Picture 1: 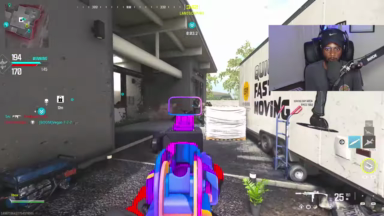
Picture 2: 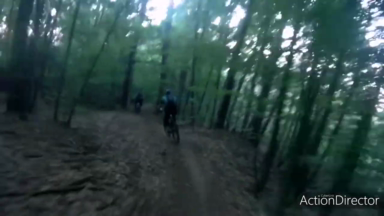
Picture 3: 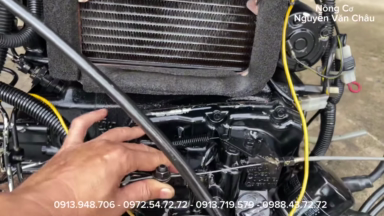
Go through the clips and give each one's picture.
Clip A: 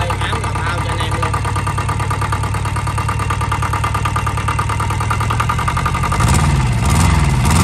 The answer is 3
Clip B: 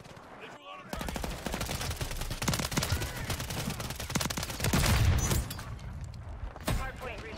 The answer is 1